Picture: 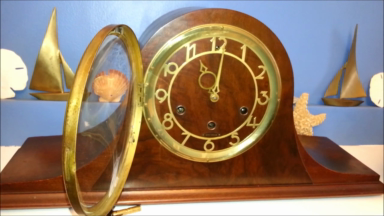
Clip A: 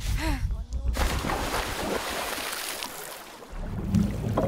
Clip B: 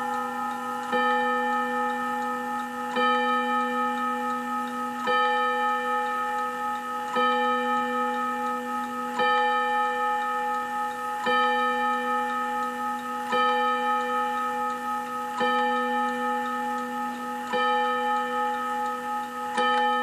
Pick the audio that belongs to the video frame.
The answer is B